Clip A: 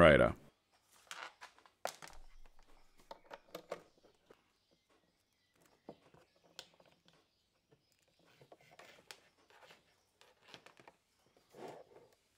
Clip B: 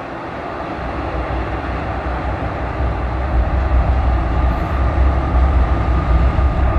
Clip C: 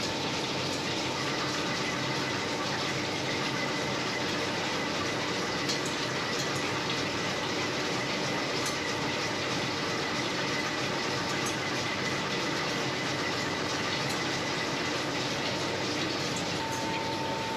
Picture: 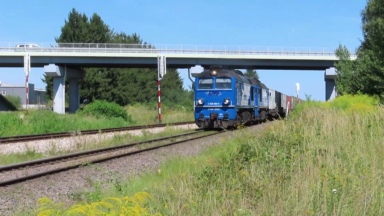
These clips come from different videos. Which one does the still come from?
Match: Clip B